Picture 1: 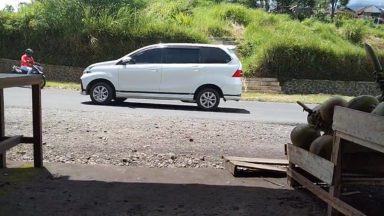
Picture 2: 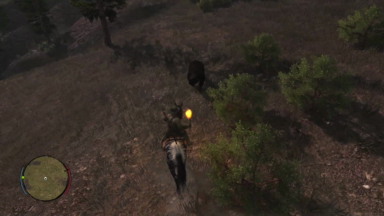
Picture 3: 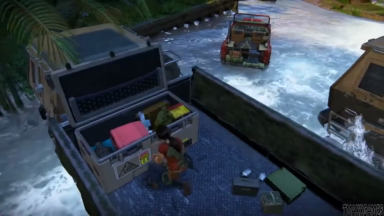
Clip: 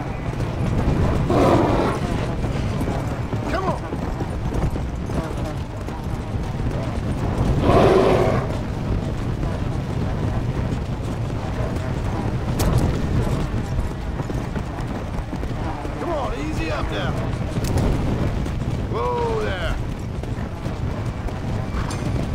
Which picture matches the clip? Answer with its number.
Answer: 2